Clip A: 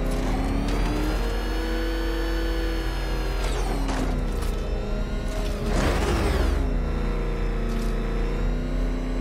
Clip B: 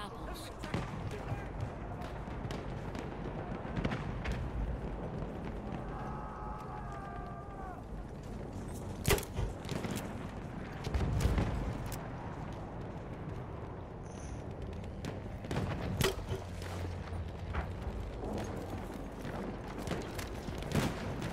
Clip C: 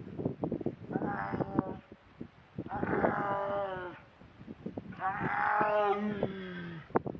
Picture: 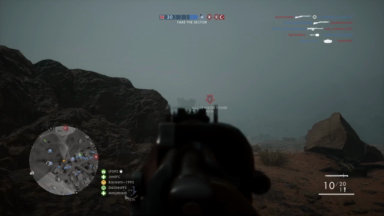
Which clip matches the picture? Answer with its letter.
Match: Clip B